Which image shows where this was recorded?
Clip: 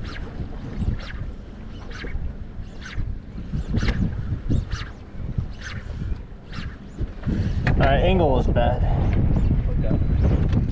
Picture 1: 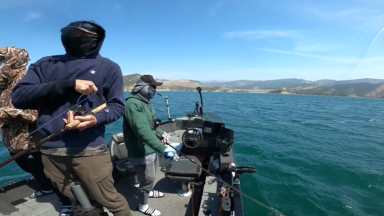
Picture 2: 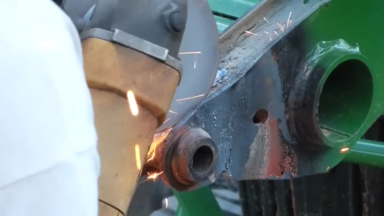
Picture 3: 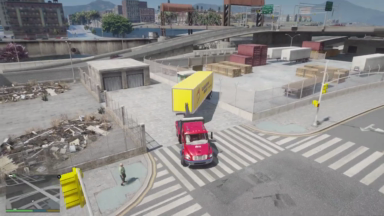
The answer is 1